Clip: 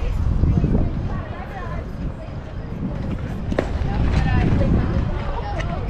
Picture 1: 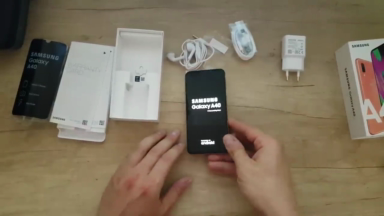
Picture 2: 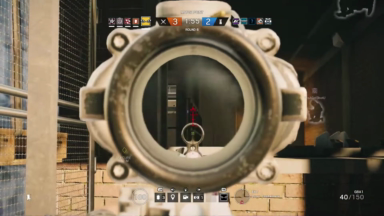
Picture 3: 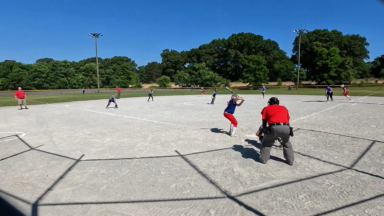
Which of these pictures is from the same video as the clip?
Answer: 3